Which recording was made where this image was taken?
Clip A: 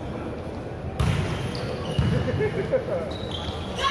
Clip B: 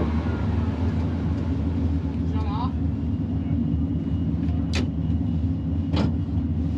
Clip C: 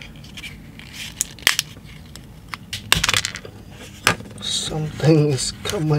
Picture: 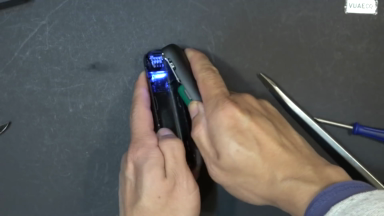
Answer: C